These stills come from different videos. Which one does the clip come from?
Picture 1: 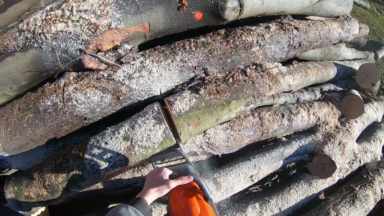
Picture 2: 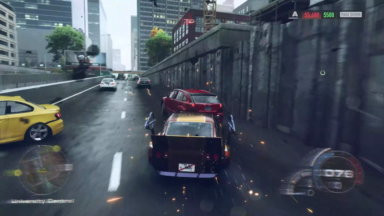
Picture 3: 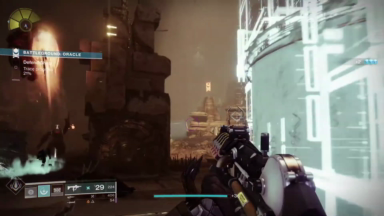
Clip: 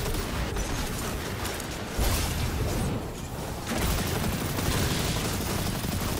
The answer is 3